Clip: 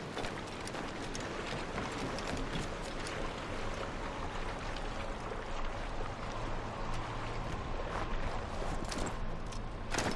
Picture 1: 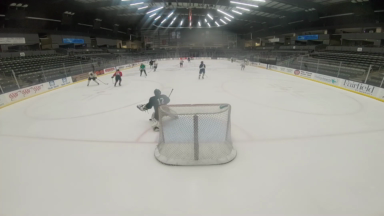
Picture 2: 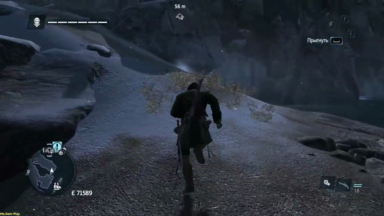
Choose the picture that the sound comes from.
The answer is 2